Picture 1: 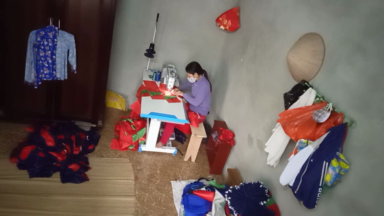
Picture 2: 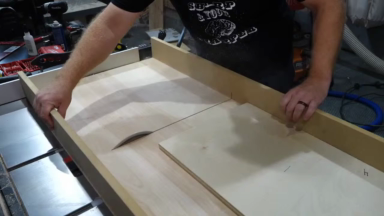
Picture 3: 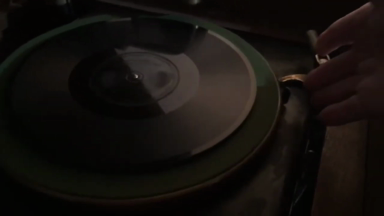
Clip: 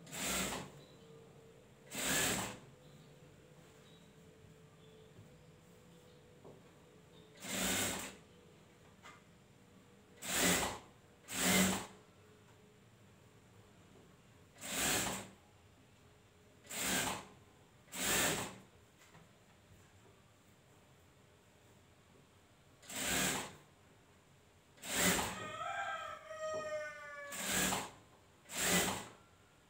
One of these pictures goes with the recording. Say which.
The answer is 1